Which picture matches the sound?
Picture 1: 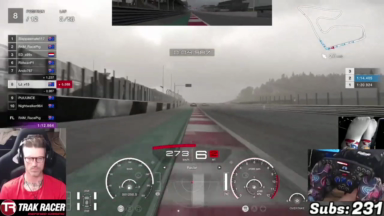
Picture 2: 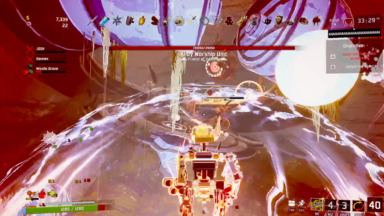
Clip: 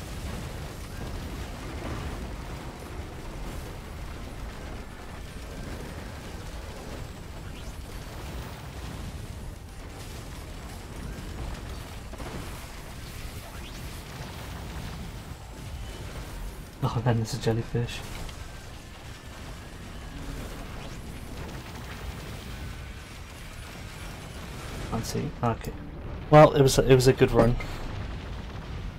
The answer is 2